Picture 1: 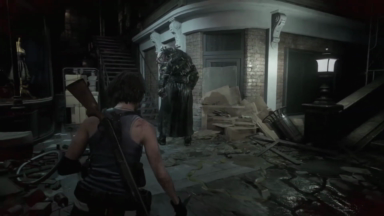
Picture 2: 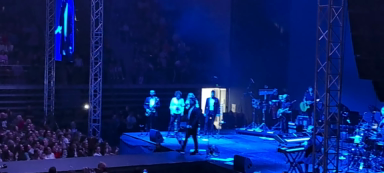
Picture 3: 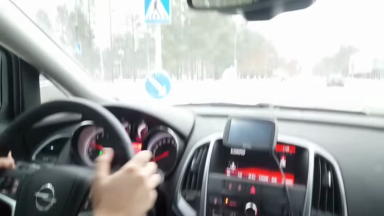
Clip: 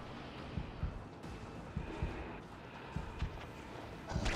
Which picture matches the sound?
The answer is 1